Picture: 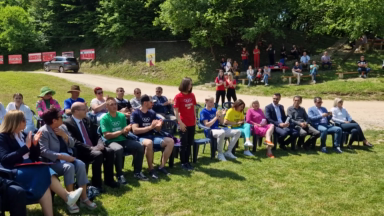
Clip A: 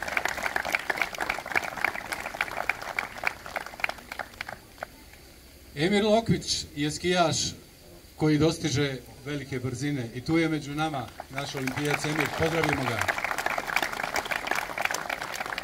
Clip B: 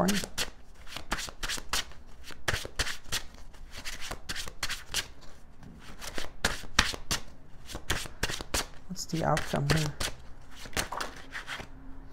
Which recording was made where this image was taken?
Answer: A